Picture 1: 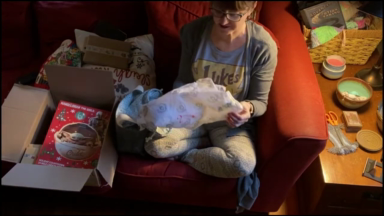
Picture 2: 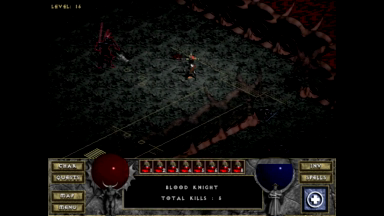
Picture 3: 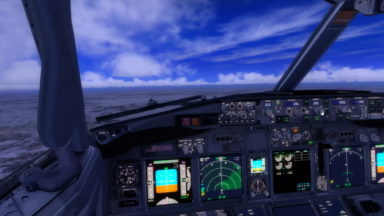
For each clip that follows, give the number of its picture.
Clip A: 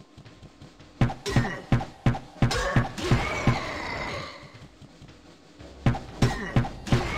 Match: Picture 2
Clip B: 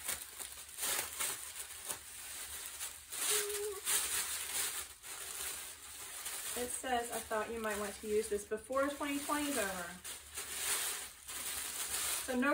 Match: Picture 1